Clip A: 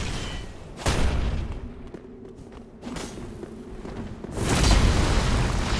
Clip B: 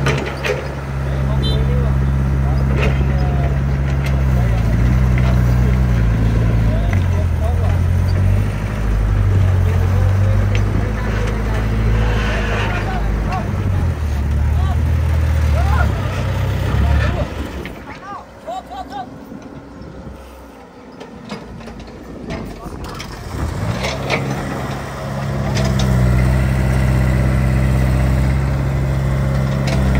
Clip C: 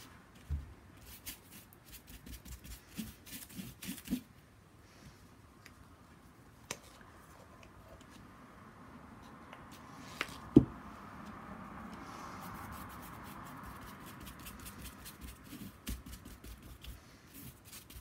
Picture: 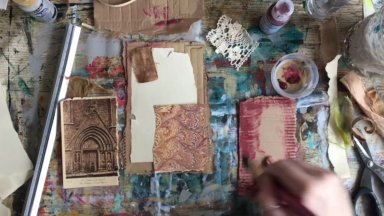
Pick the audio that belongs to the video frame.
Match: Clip C